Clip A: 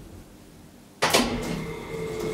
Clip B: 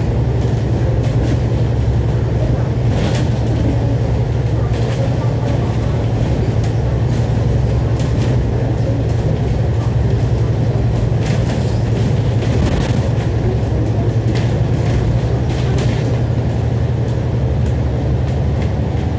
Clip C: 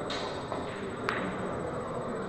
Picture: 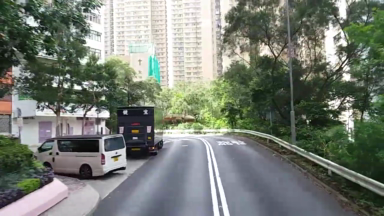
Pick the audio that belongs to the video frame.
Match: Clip B